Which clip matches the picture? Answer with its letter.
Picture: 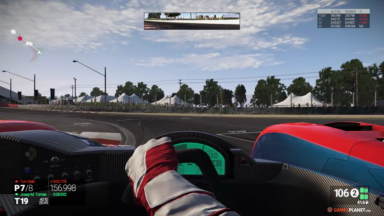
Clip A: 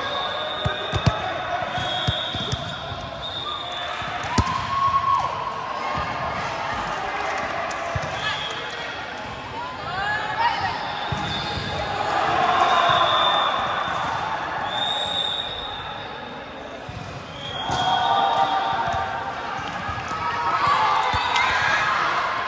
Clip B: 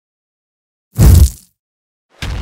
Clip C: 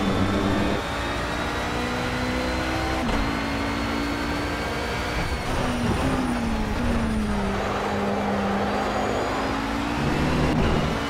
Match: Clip C